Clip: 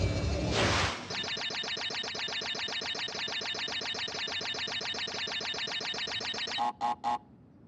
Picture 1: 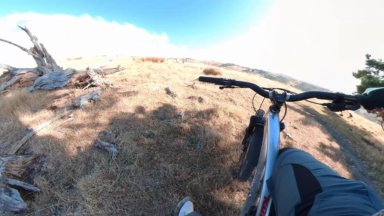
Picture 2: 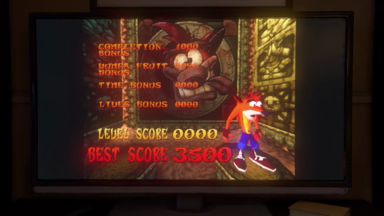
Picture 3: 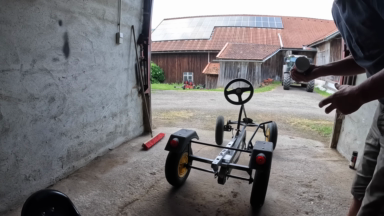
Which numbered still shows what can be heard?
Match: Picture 2